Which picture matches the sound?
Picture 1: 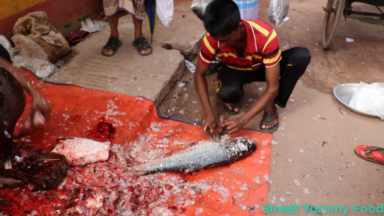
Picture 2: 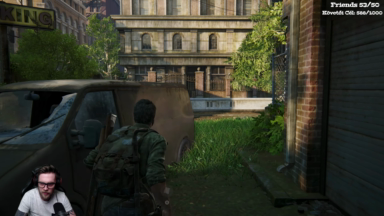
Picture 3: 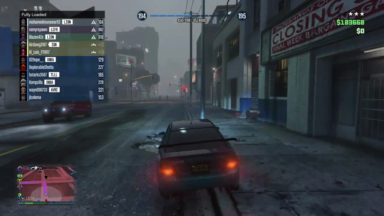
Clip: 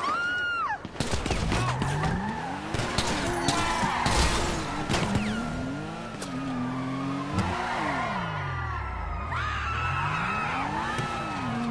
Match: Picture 3